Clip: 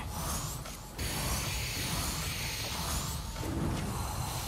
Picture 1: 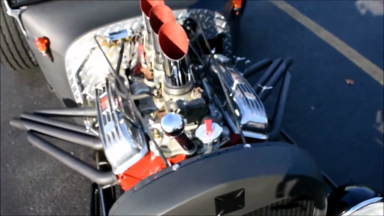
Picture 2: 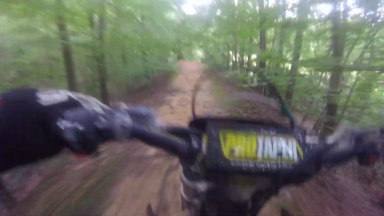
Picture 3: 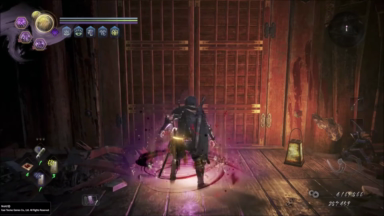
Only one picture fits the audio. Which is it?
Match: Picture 3